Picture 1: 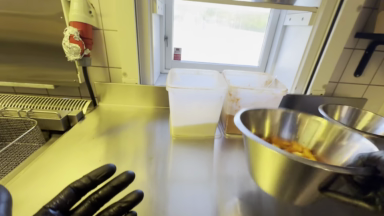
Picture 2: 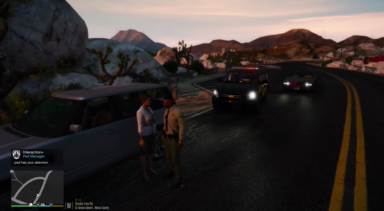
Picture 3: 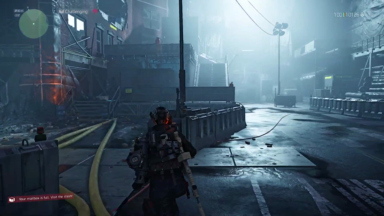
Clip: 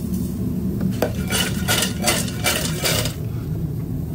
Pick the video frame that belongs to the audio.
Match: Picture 1